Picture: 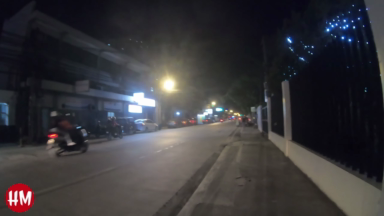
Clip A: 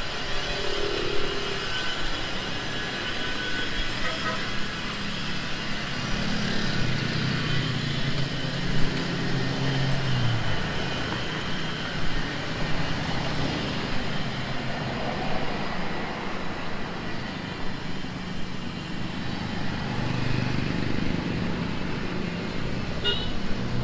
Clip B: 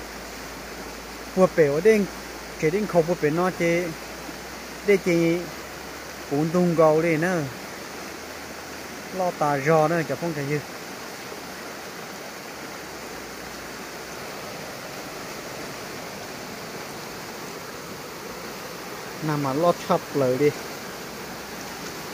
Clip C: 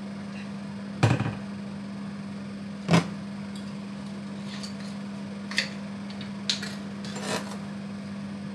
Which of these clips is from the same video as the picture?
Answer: A